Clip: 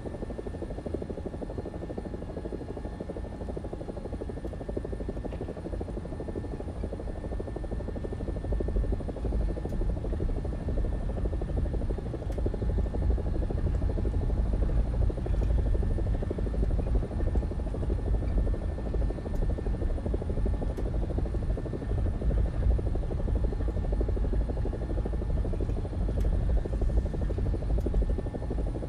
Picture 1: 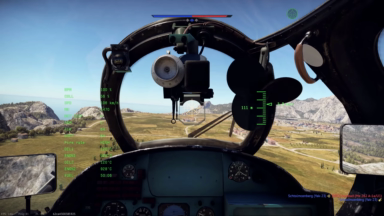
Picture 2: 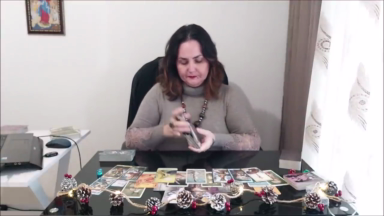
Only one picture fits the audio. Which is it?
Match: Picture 1